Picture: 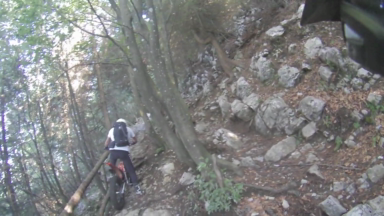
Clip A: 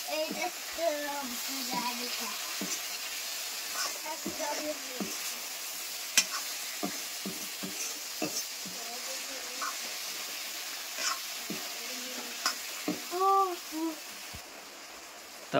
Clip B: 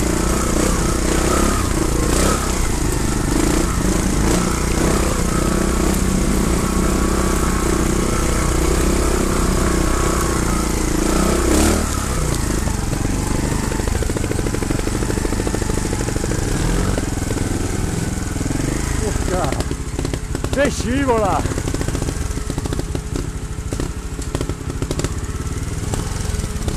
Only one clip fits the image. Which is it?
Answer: B